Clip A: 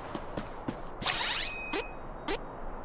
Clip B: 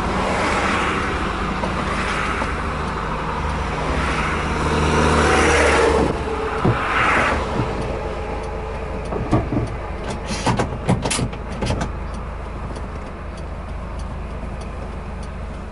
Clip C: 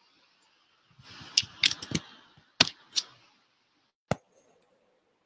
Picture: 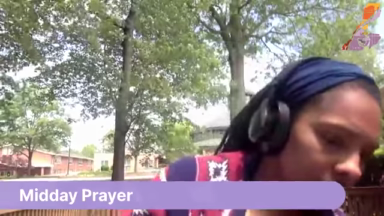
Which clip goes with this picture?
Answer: C